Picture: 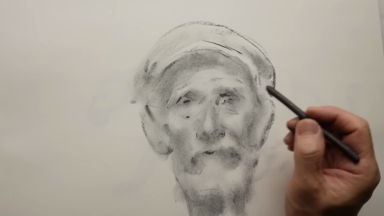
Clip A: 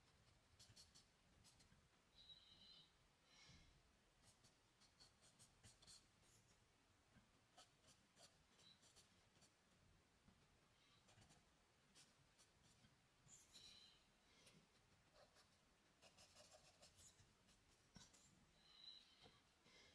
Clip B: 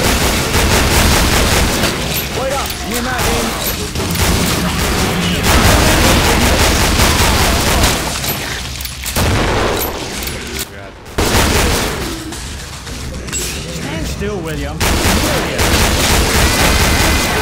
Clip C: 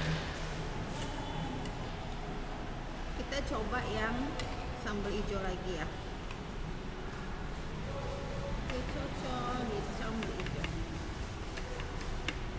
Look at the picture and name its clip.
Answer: A